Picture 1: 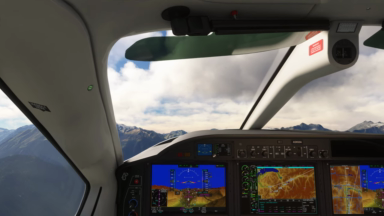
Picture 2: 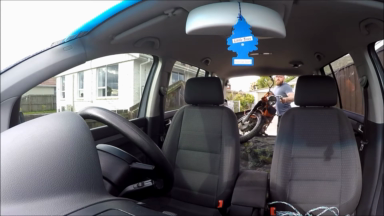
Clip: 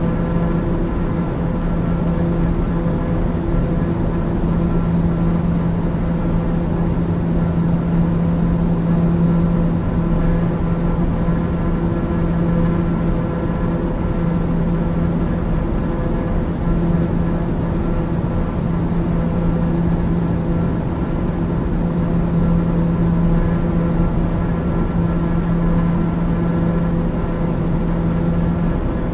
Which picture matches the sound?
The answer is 1